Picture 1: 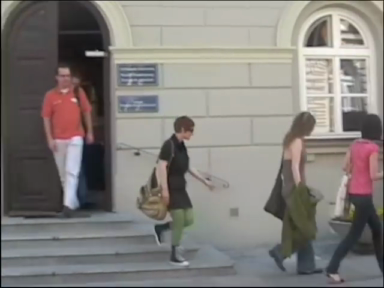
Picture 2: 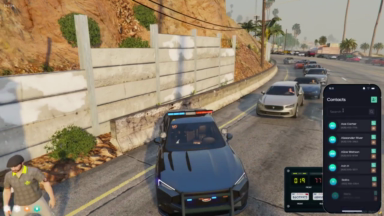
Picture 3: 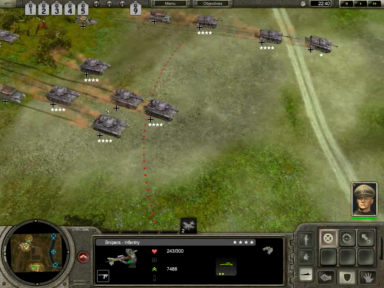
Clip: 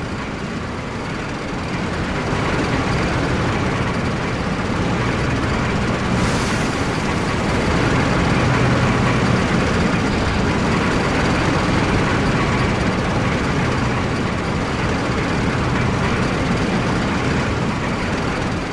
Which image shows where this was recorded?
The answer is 3